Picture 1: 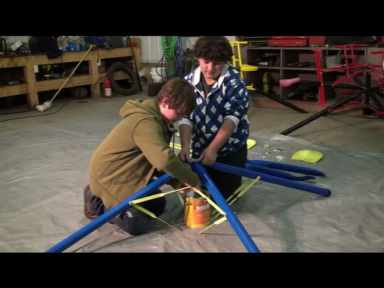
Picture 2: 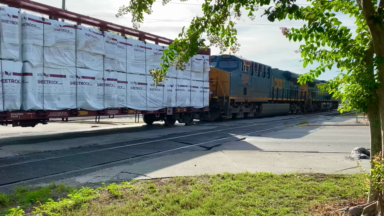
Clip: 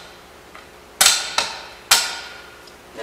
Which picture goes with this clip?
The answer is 1